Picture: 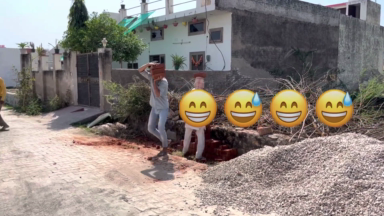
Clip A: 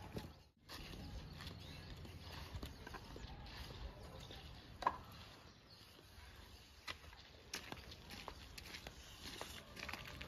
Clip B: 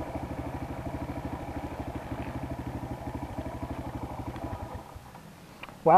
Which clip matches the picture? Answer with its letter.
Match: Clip A